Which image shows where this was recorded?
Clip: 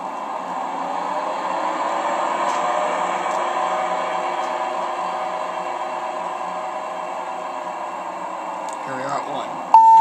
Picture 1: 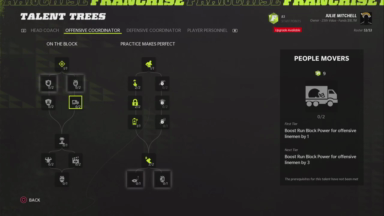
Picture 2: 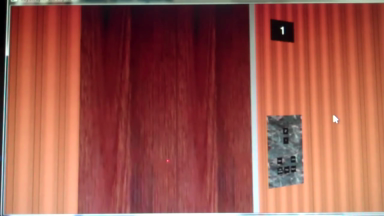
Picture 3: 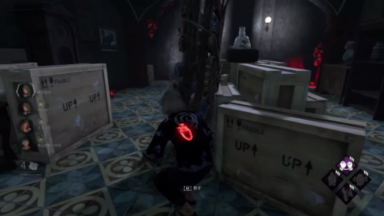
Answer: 2